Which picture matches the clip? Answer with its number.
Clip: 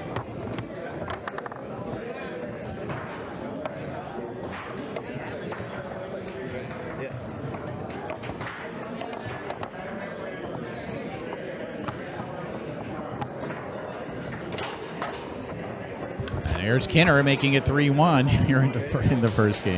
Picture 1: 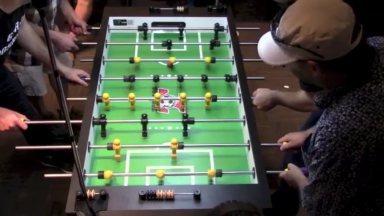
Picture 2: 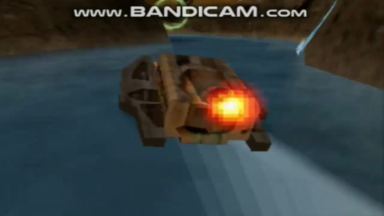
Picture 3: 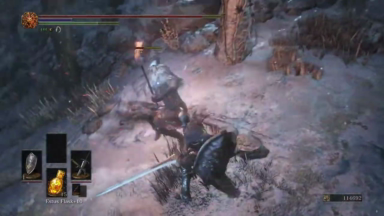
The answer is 1